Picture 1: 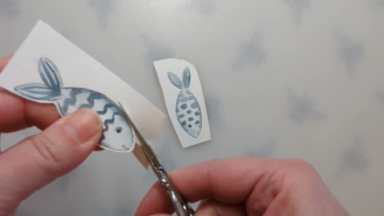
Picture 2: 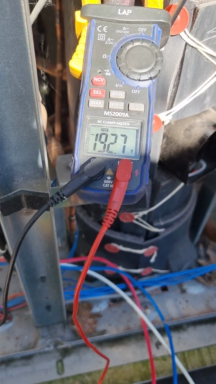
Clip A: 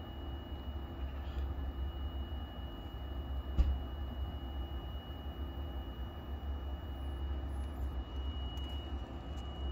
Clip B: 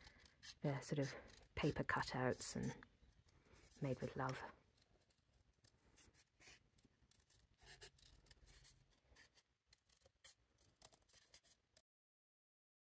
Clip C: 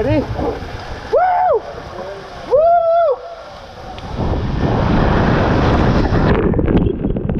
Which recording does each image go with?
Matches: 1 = B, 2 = A